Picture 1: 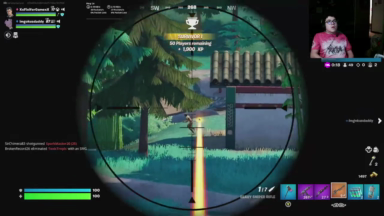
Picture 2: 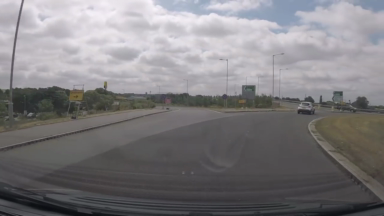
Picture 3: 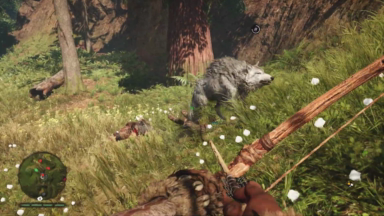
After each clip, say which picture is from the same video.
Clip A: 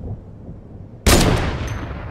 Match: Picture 1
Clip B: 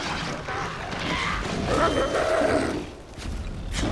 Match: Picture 3